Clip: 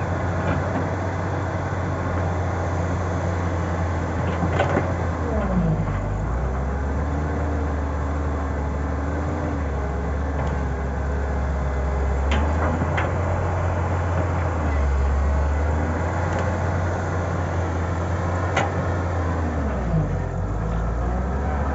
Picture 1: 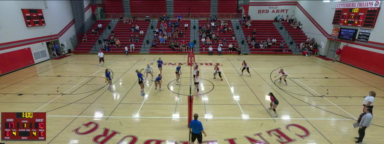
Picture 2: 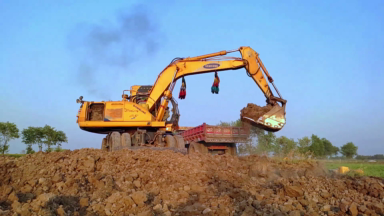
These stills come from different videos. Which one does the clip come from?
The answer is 2